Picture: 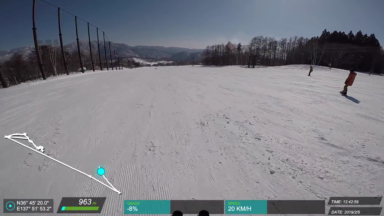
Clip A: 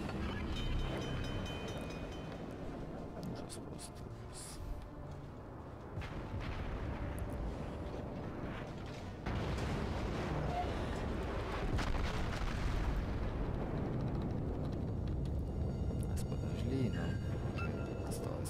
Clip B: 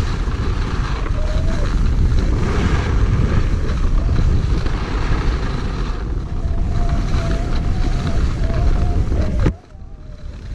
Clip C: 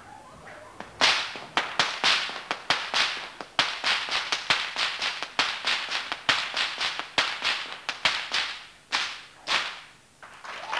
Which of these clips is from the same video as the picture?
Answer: B